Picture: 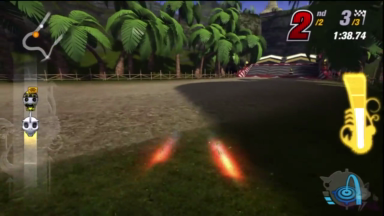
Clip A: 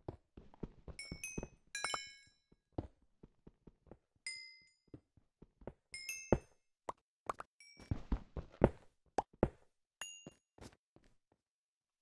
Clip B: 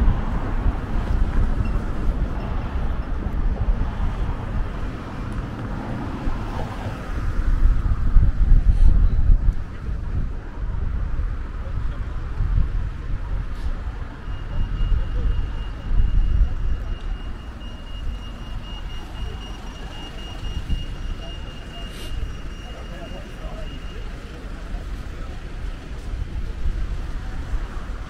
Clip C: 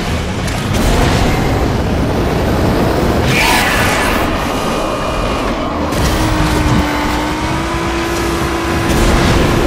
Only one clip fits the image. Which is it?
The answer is C